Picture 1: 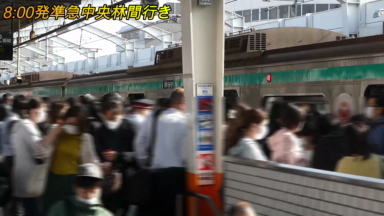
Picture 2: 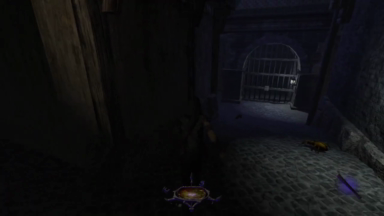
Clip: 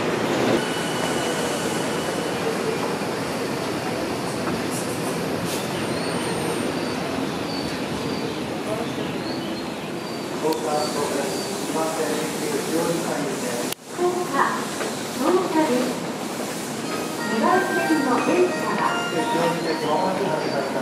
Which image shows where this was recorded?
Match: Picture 1